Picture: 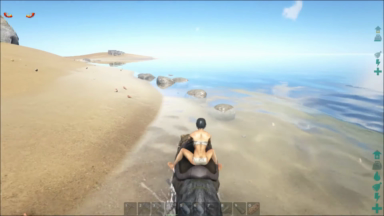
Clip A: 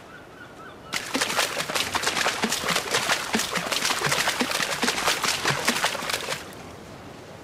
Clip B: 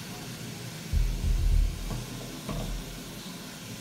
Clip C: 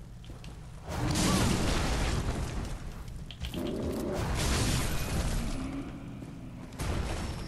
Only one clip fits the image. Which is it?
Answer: A